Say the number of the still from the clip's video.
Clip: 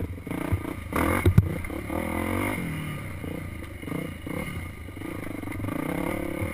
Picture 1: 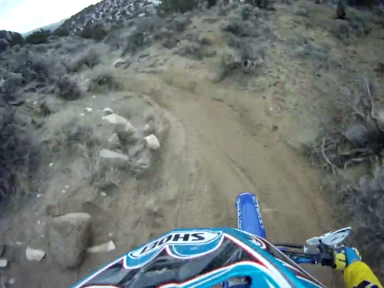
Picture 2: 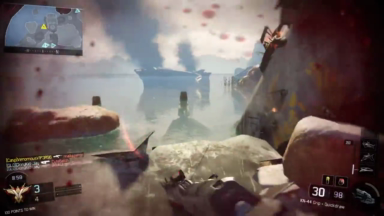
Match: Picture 1